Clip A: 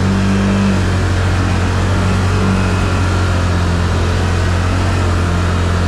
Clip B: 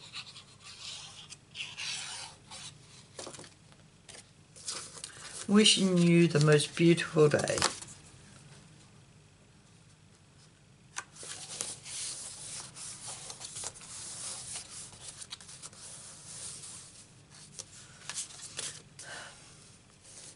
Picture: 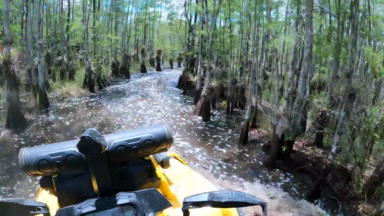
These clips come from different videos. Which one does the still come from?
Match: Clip A